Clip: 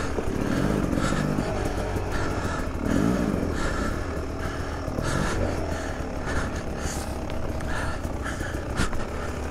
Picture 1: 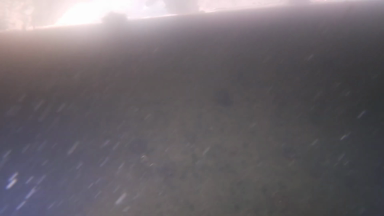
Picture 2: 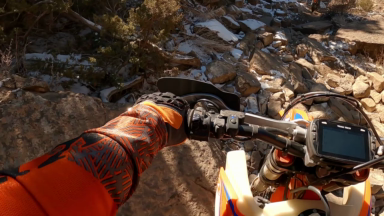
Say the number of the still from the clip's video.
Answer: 2